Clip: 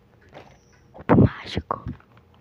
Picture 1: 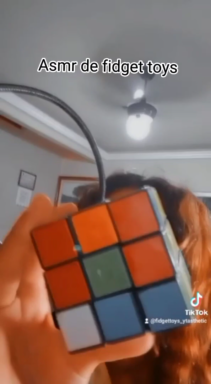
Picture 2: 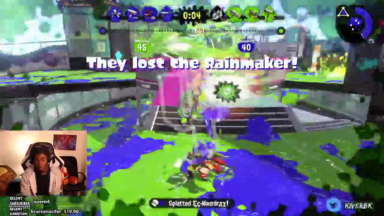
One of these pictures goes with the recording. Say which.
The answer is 1